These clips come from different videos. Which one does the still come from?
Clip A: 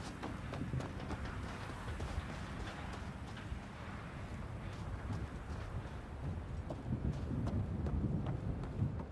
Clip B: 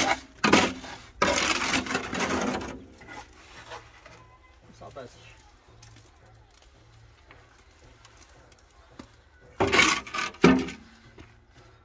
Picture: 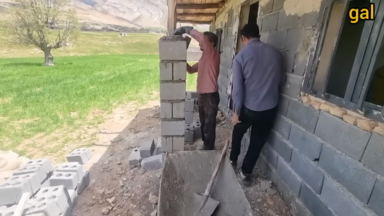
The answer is B